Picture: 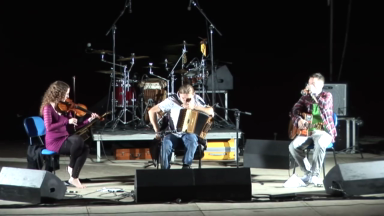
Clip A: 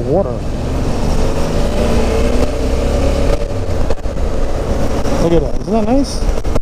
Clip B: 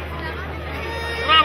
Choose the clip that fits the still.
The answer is B